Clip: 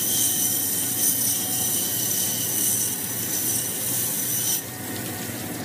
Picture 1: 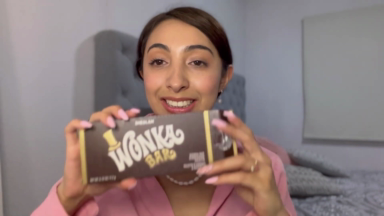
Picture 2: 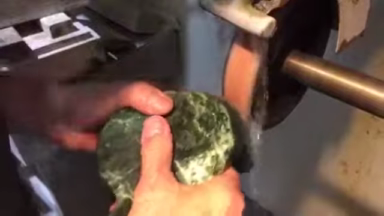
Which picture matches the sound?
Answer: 2